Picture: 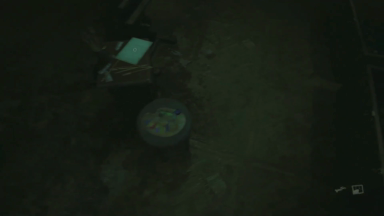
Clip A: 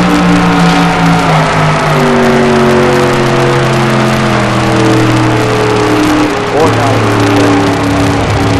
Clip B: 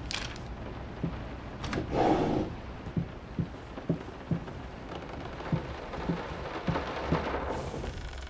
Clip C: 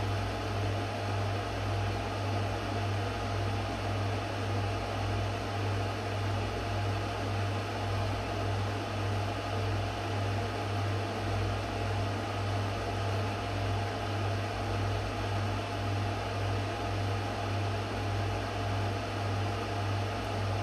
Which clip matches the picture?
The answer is B